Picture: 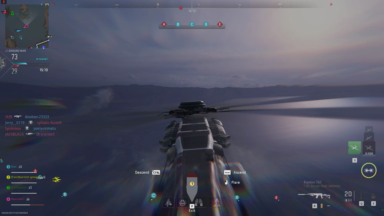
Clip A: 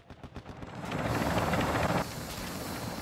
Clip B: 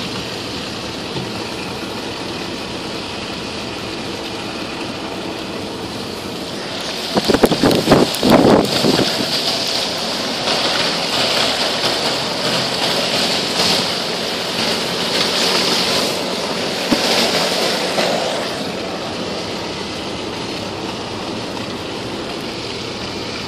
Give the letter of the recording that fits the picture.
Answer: A